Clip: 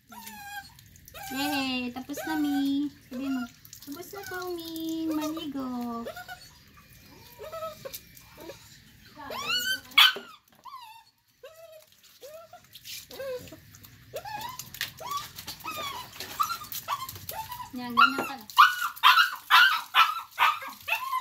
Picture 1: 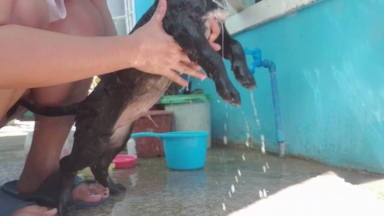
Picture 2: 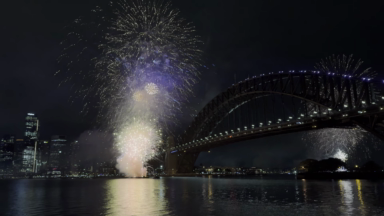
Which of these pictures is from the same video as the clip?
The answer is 1